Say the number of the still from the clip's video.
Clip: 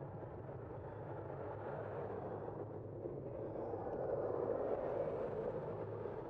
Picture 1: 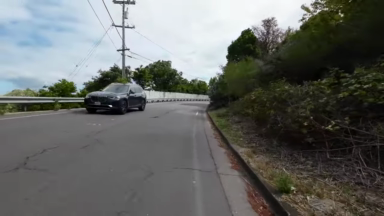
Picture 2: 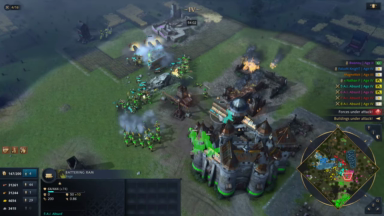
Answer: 1